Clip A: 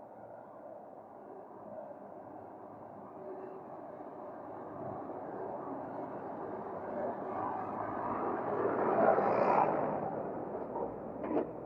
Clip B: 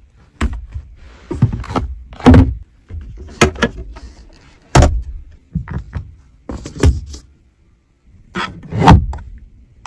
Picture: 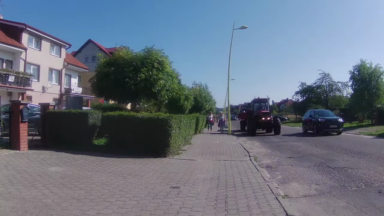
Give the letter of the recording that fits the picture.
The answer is A